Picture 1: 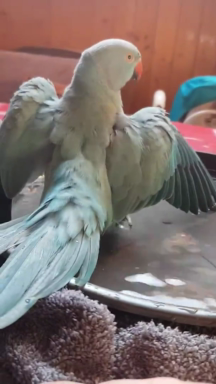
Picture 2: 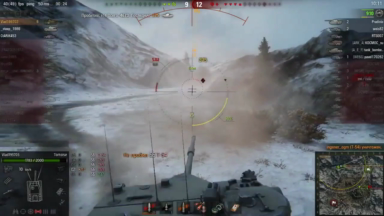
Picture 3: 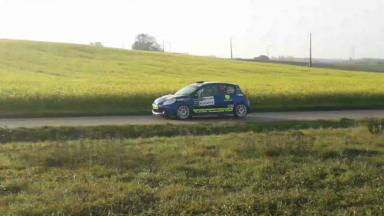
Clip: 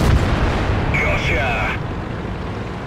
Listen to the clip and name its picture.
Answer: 2